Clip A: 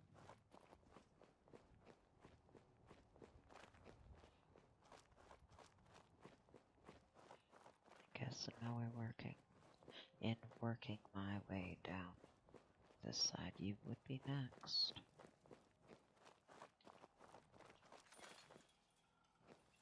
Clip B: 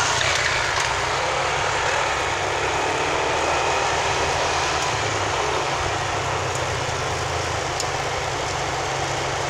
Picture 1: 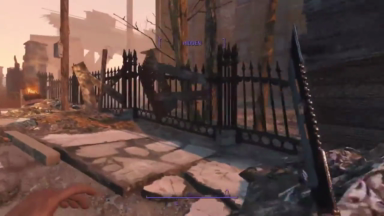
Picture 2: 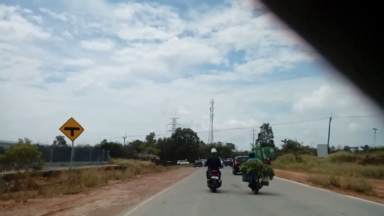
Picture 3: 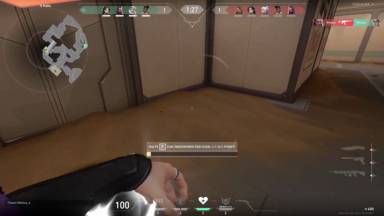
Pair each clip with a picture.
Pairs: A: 1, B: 2